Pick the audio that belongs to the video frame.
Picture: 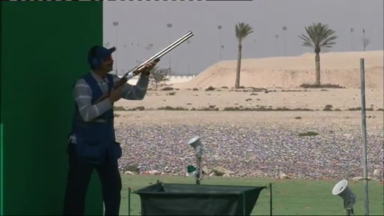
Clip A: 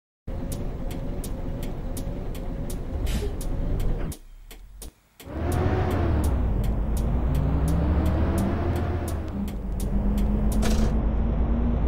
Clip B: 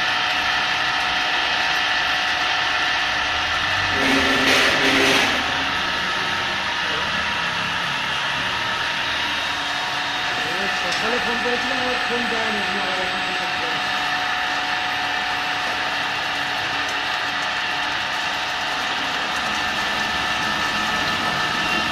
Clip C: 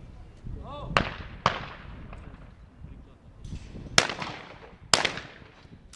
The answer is C